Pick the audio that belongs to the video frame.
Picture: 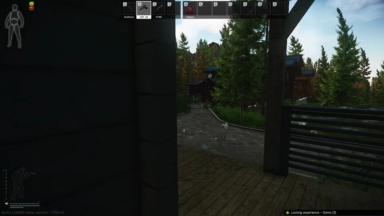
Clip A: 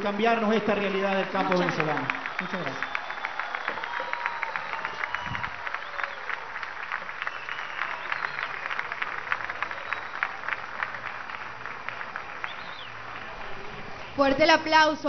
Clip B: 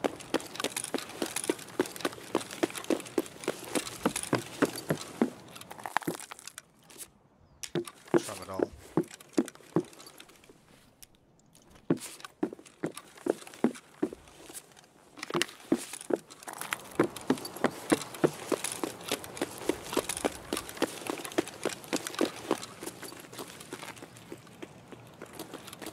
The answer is B